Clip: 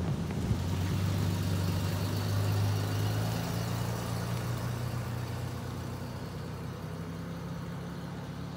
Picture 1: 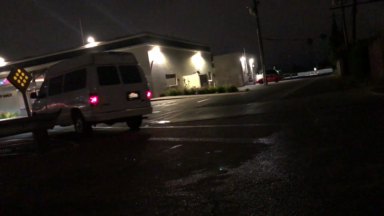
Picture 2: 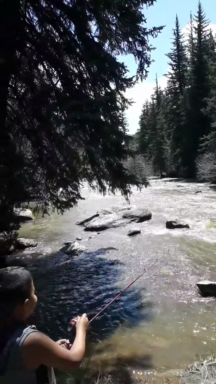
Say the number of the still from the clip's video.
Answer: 1